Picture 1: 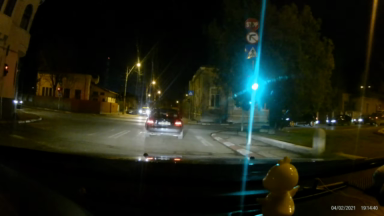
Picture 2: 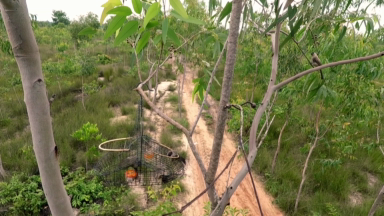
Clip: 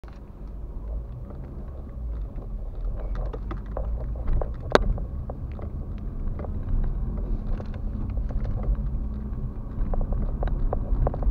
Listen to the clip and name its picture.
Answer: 1